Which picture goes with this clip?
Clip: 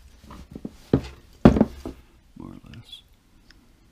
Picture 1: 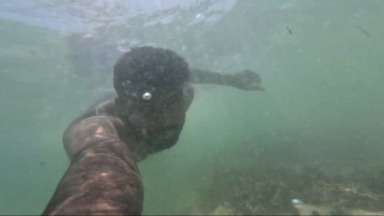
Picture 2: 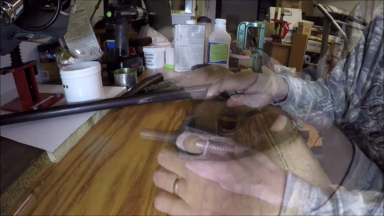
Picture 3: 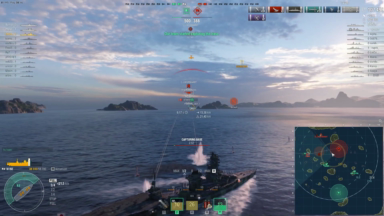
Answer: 2